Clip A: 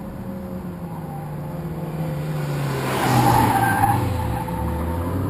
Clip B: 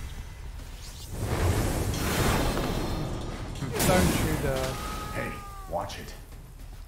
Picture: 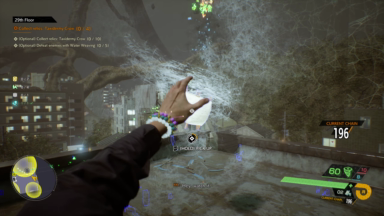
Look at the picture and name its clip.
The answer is B